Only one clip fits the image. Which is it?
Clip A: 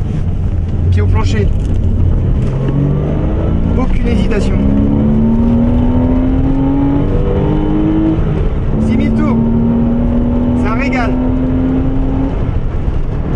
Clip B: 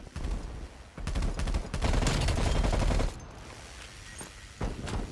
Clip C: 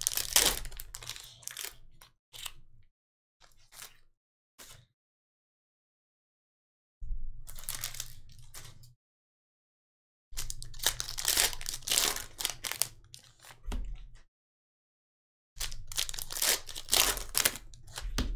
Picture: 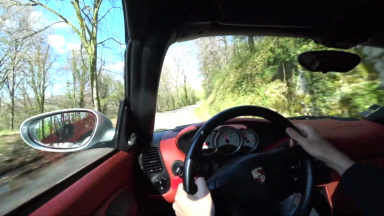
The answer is A